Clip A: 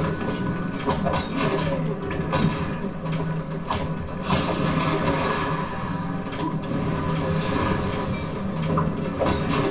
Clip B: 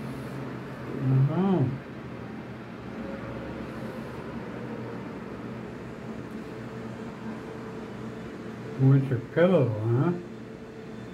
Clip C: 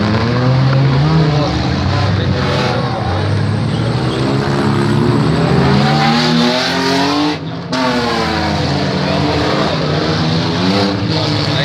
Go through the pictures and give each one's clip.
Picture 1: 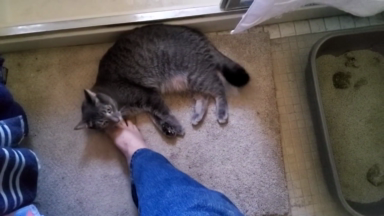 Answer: B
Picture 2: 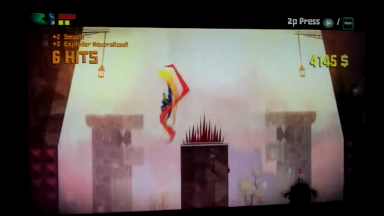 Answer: A